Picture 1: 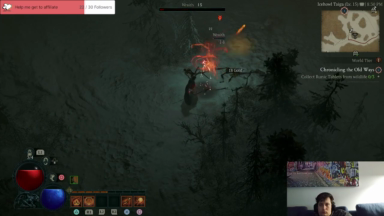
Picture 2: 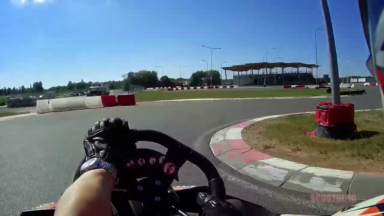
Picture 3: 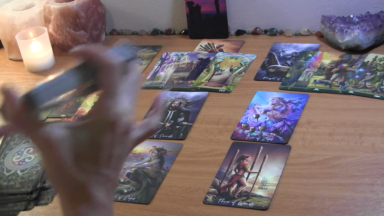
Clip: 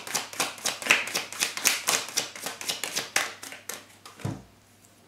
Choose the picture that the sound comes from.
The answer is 3